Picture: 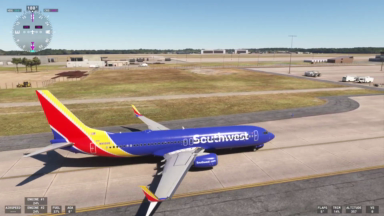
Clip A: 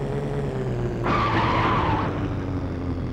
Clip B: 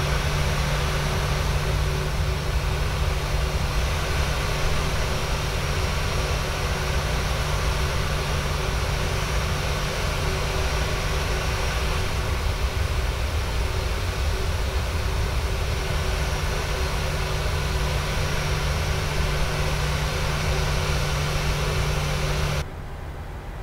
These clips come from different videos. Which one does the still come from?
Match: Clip B